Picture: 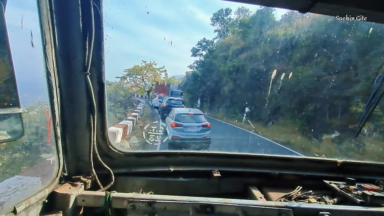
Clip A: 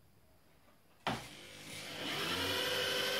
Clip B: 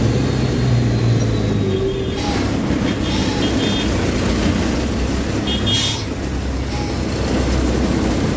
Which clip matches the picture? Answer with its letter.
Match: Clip B